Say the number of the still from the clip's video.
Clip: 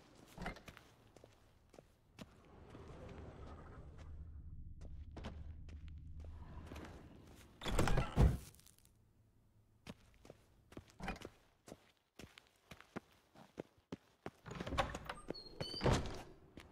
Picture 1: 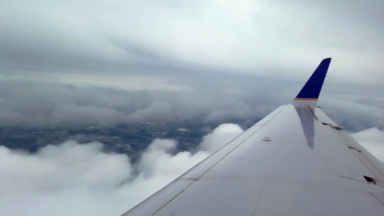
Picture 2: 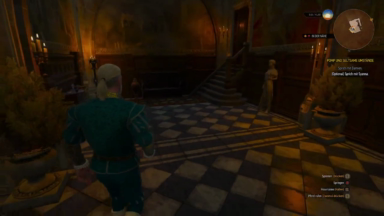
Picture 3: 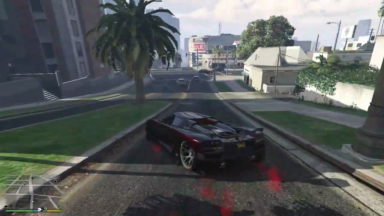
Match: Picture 2